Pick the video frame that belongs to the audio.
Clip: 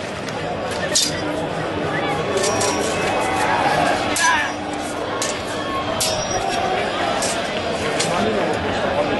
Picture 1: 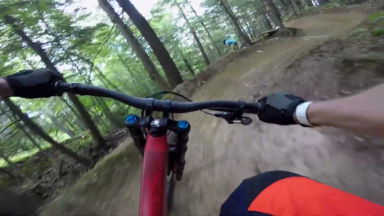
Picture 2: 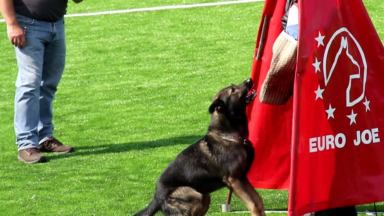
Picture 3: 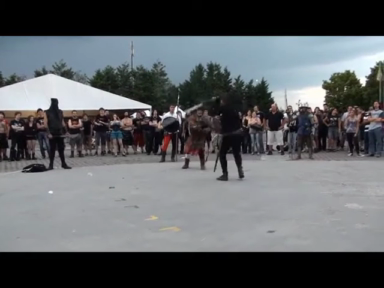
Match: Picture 3